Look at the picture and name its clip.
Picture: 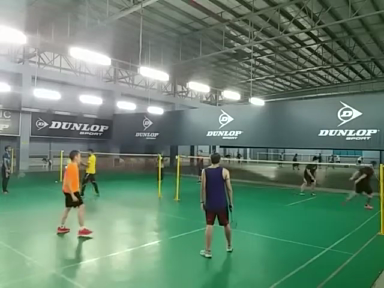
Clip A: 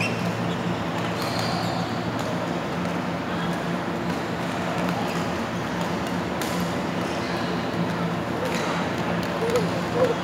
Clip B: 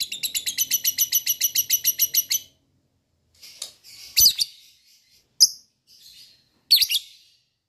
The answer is A